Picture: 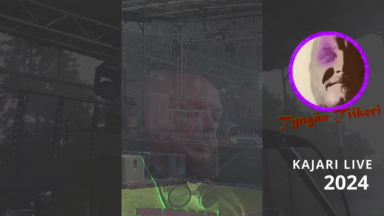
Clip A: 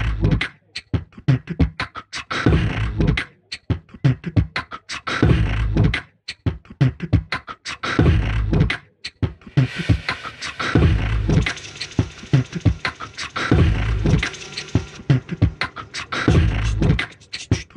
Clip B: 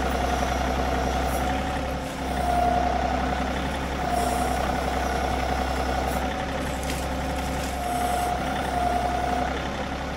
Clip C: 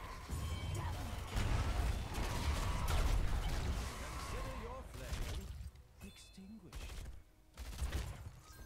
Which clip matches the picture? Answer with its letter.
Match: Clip A